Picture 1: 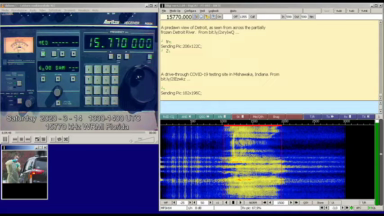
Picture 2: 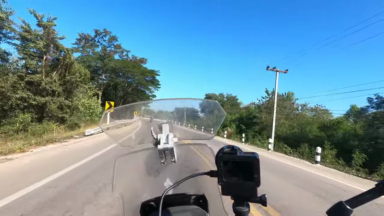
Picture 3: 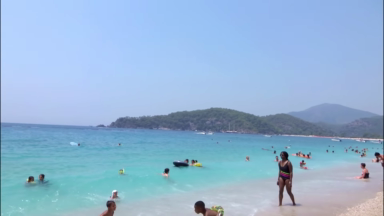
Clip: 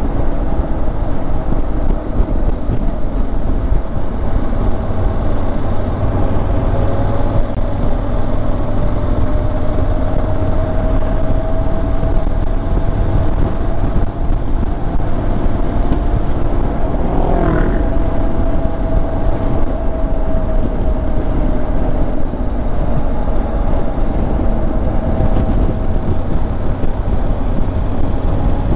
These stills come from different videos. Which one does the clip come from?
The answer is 2